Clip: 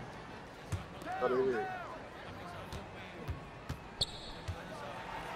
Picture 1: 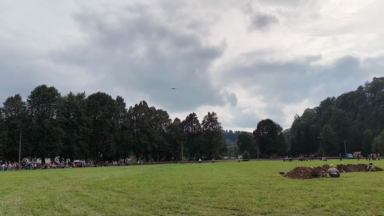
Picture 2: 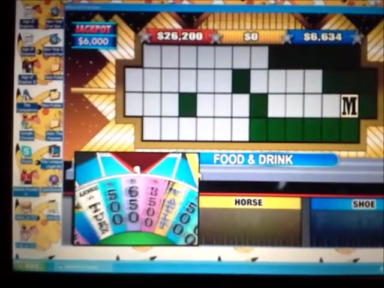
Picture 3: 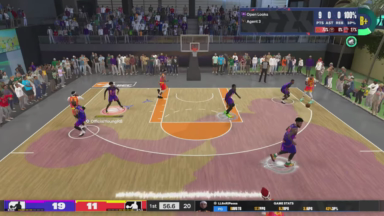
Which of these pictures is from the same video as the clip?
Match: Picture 3